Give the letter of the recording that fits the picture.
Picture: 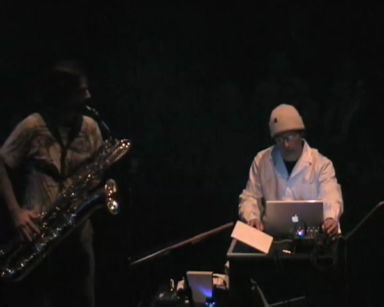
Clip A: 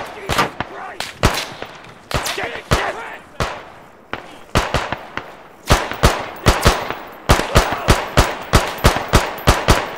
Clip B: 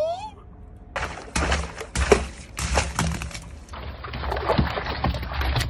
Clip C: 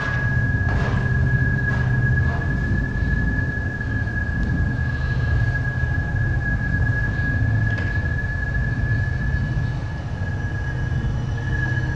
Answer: C